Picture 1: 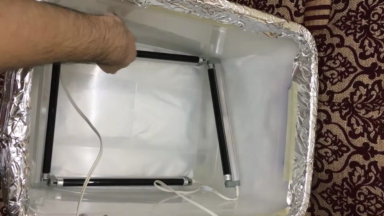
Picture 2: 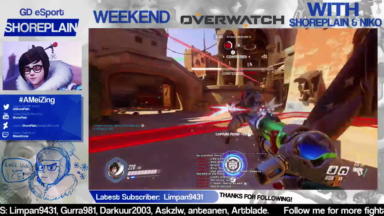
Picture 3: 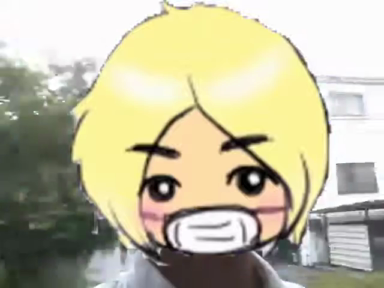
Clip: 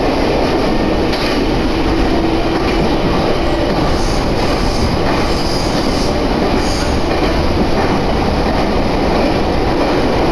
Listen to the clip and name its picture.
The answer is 3